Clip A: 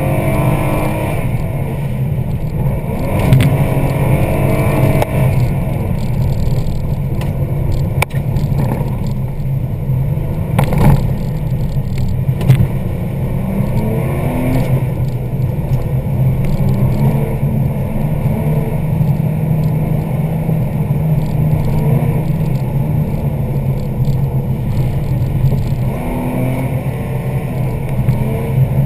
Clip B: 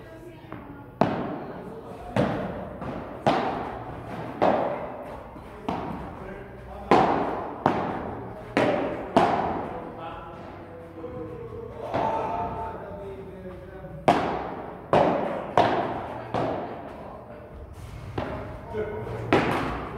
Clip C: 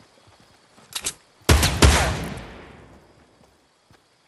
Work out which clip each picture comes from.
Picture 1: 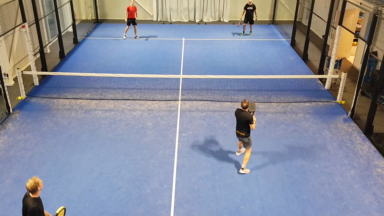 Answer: B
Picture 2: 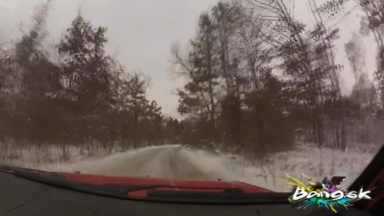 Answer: A